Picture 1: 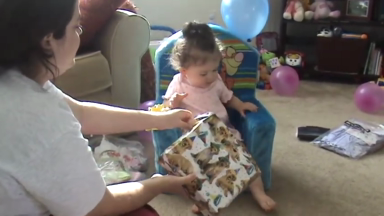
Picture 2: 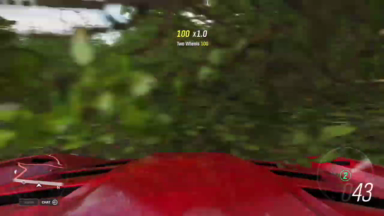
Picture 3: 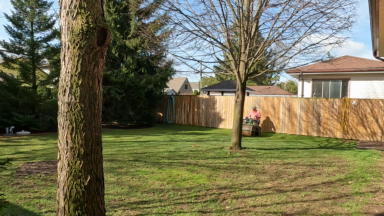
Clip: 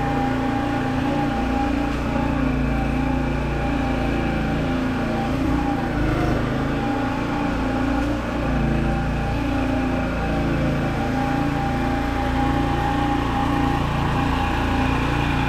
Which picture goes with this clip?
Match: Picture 3